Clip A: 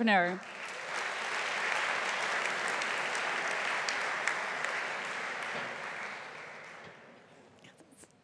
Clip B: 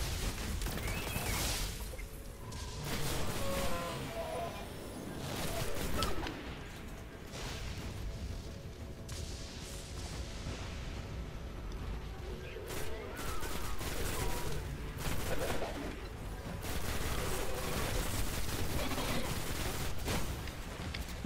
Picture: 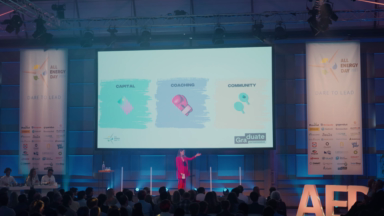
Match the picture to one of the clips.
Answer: A